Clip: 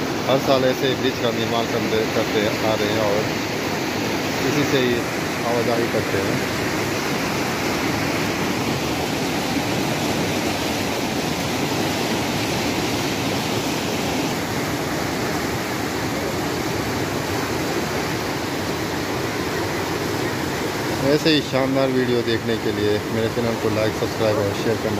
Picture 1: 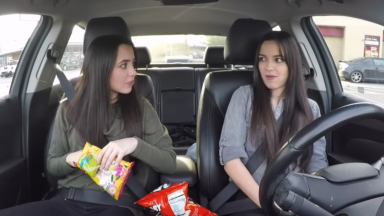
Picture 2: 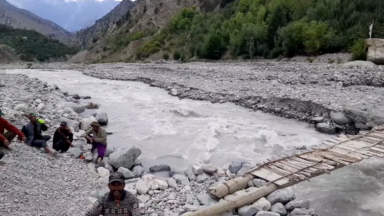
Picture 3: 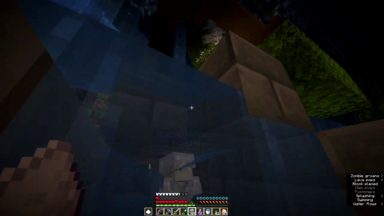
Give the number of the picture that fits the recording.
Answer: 2